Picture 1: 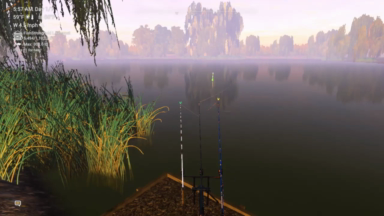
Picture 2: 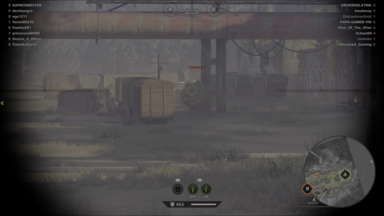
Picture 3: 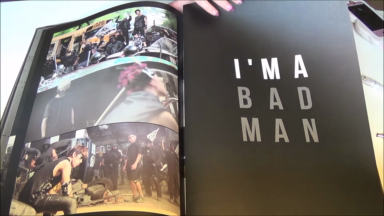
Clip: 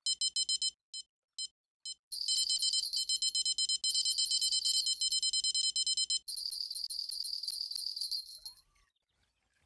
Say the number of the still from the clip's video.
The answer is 1